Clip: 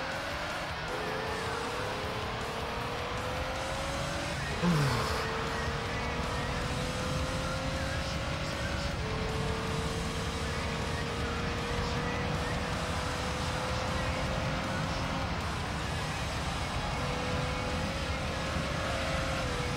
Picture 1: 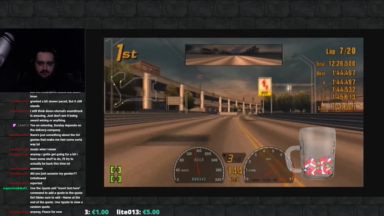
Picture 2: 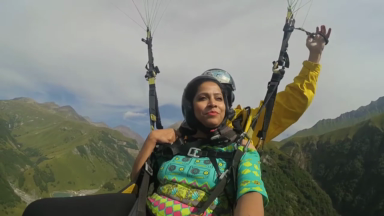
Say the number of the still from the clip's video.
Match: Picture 1